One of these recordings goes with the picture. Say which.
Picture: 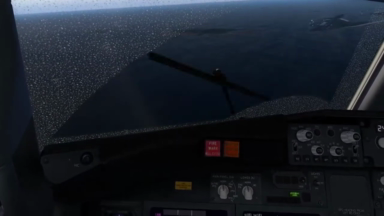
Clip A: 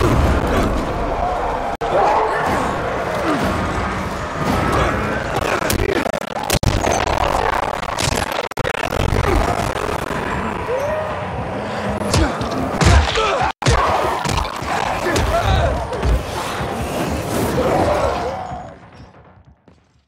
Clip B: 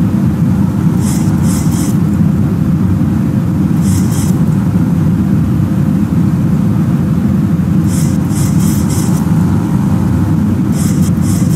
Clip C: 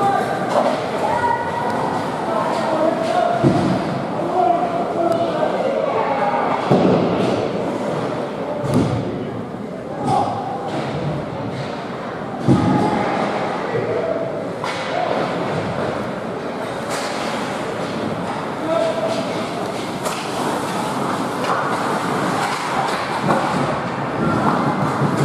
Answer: B